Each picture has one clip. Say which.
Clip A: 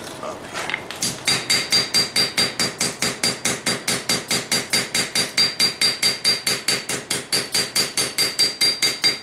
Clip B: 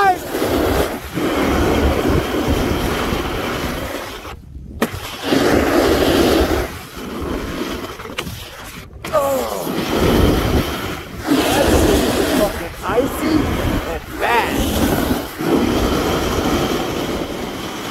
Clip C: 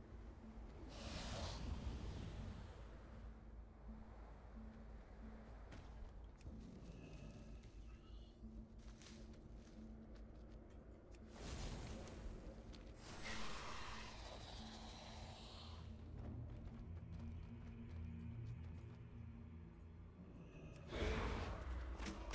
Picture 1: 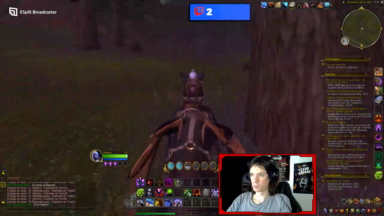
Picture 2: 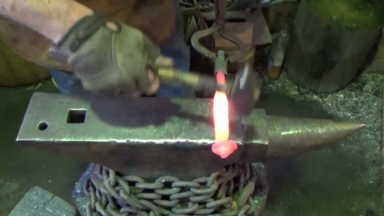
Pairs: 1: C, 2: A